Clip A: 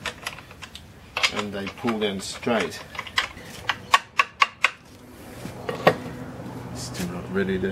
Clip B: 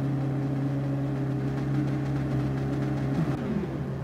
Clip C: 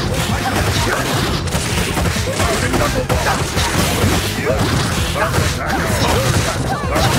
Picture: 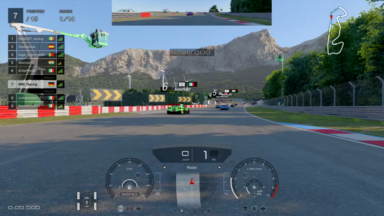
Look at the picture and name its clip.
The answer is B